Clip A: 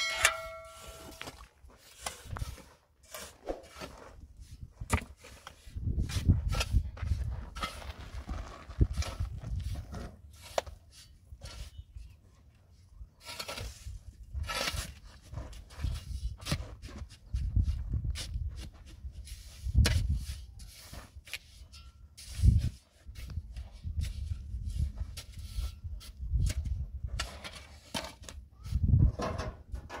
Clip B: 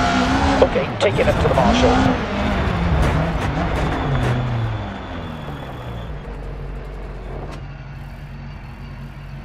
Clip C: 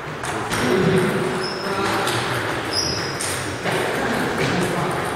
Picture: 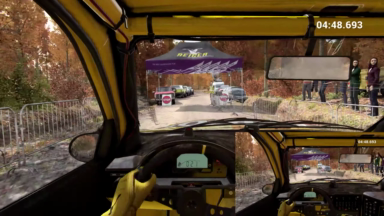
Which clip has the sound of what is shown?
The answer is B